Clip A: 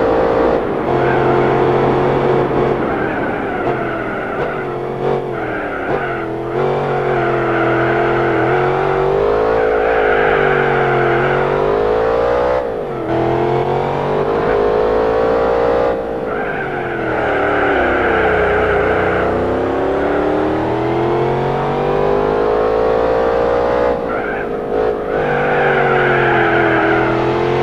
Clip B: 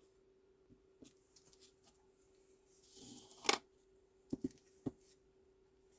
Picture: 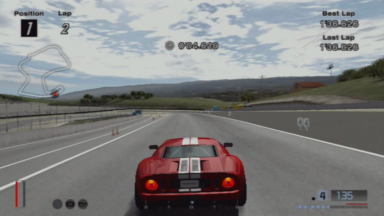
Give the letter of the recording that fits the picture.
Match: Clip A